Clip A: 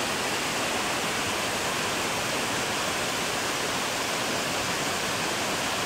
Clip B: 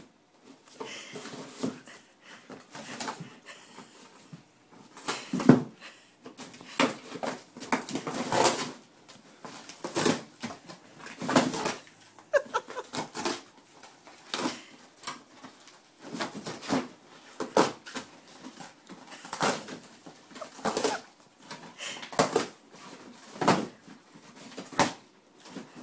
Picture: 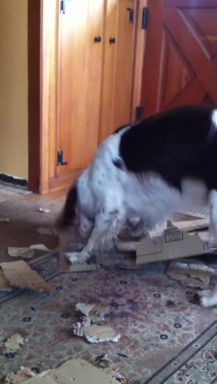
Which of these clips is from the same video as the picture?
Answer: B